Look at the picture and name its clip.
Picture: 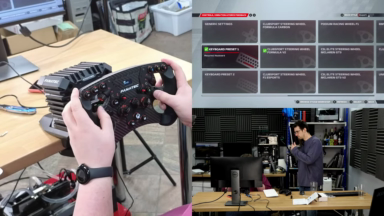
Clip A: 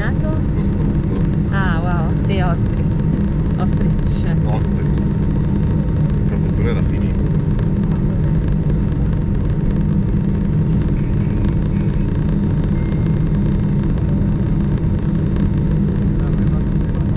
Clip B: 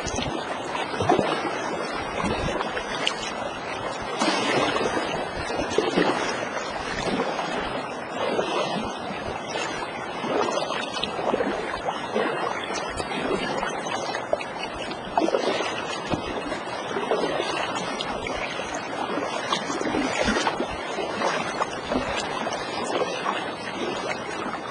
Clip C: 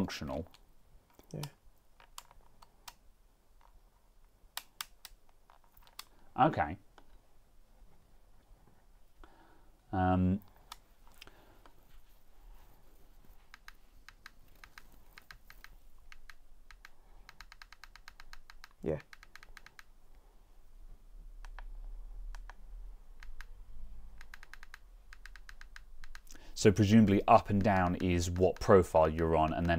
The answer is C